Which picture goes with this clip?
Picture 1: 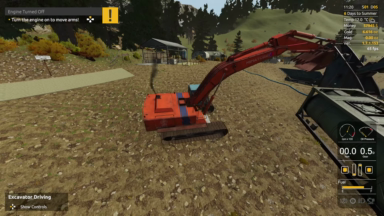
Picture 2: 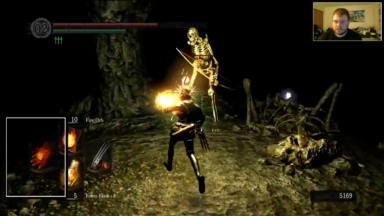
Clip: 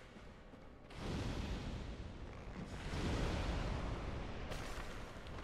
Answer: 2